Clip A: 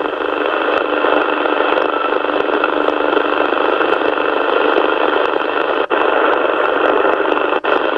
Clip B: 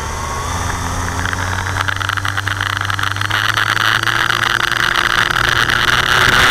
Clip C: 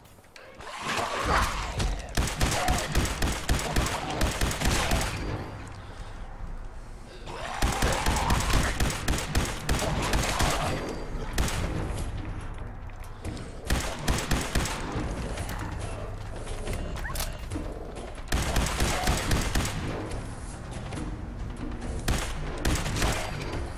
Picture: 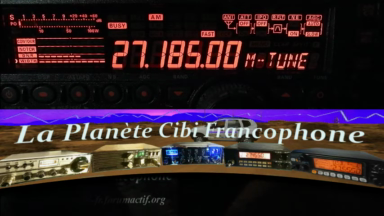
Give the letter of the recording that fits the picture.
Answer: A